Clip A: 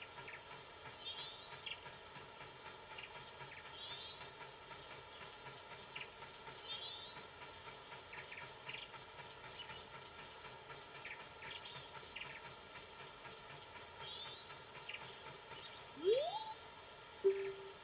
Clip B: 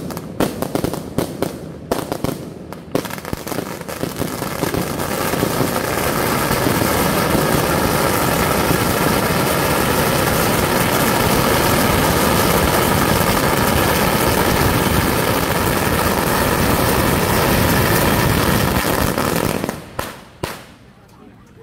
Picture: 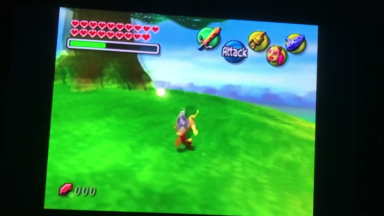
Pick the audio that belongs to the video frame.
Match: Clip A